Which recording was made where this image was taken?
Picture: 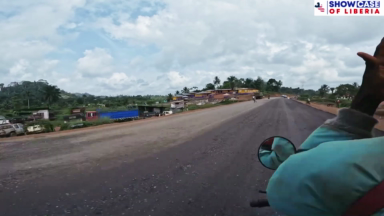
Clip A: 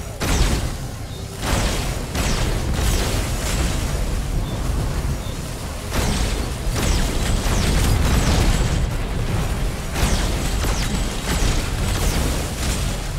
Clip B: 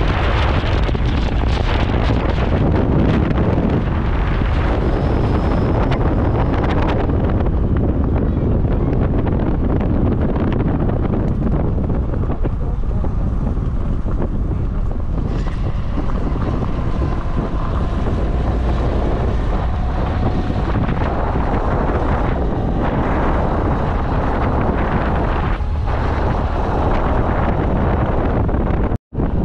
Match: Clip B